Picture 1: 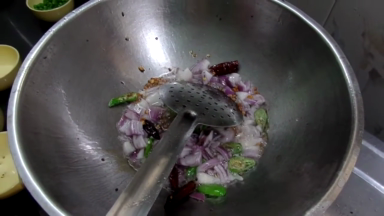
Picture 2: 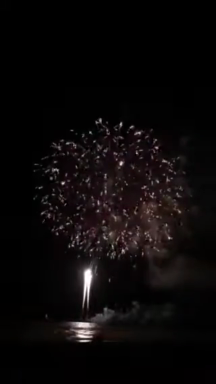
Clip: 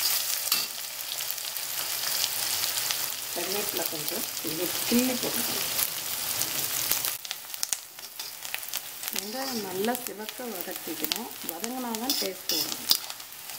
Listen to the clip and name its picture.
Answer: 1